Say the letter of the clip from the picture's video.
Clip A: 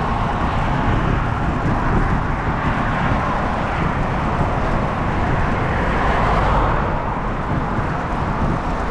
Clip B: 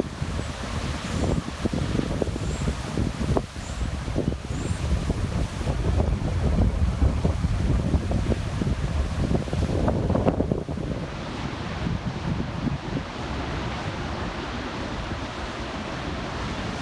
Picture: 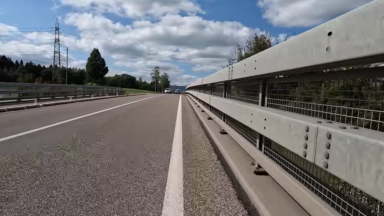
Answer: A